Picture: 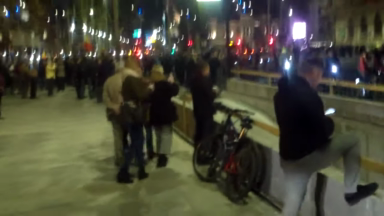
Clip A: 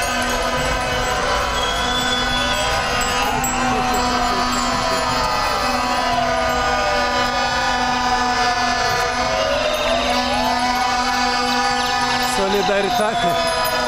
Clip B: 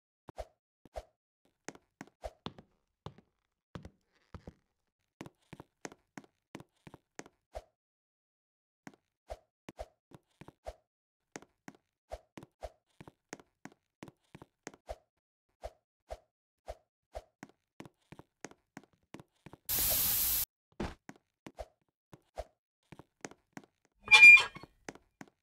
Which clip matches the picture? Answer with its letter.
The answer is A